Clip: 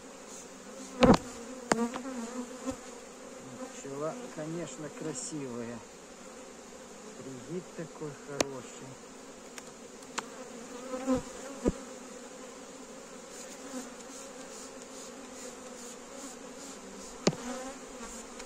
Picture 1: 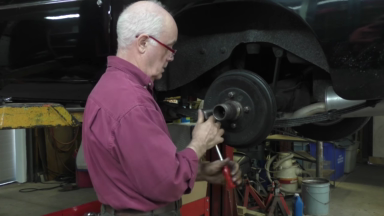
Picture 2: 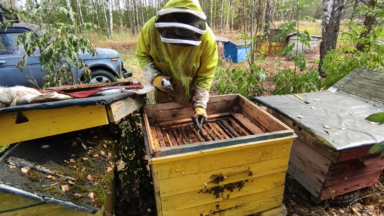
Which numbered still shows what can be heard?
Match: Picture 2